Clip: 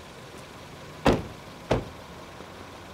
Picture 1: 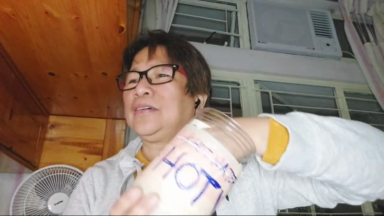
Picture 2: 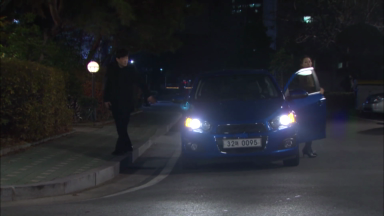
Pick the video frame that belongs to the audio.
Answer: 2